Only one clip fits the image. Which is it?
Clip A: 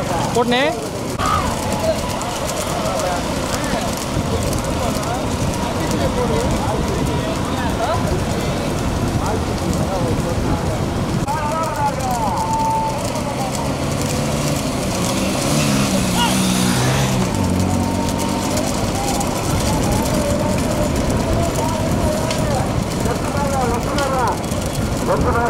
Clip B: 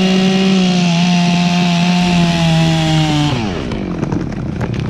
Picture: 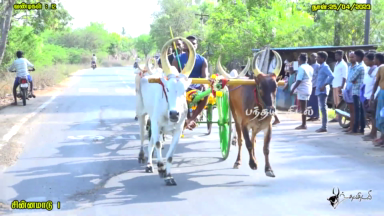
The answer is A